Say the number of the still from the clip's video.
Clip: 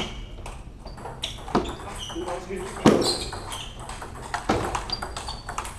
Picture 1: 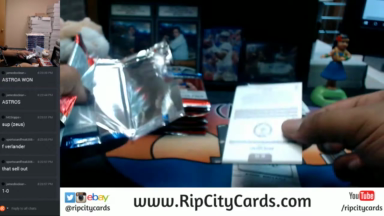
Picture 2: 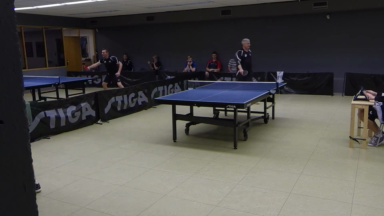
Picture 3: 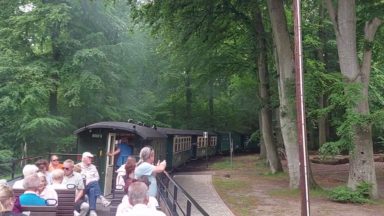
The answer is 2